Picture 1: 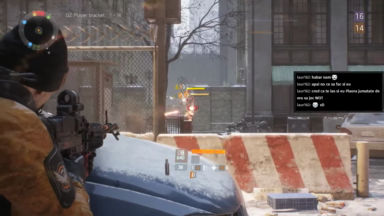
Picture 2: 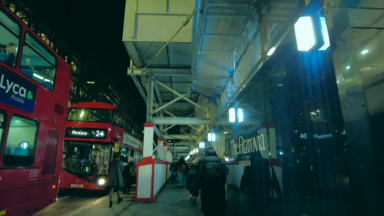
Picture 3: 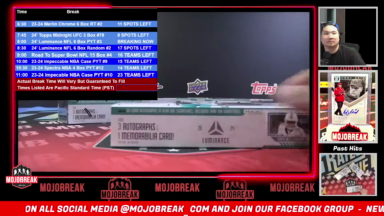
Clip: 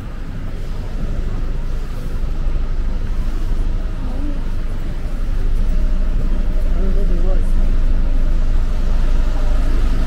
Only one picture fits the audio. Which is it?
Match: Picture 2